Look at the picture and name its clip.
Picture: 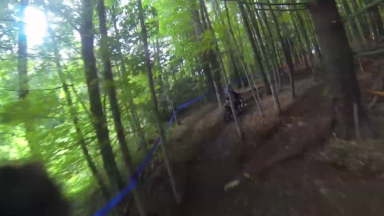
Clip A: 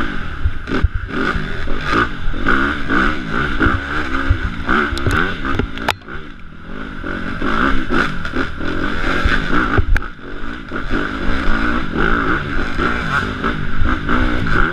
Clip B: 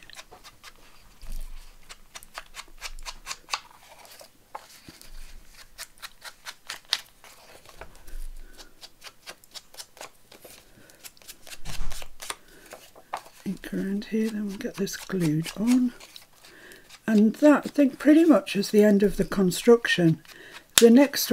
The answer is A